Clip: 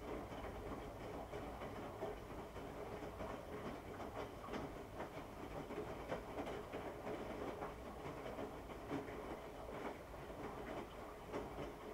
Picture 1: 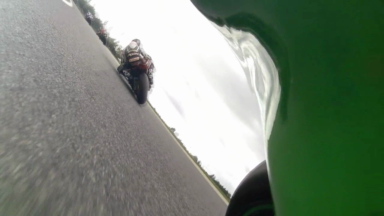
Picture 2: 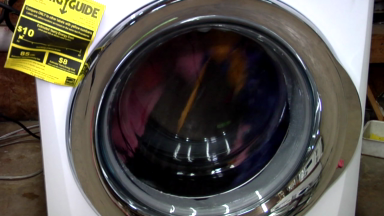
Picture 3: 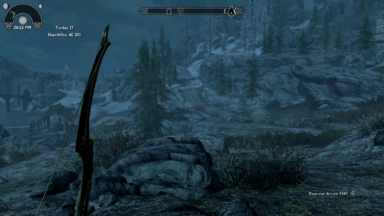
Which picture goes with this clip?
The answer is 2